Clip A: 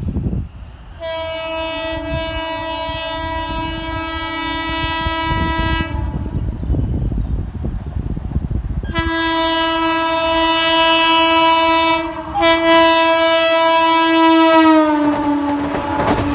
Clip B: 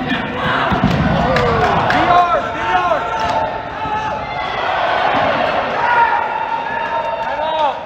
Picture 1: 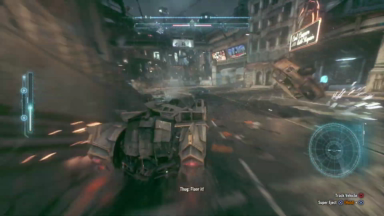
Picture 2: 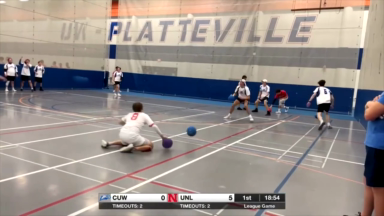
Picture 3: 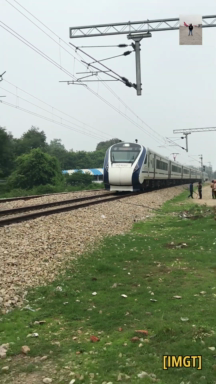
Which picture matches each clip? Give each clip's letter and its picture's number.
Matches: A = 3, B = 2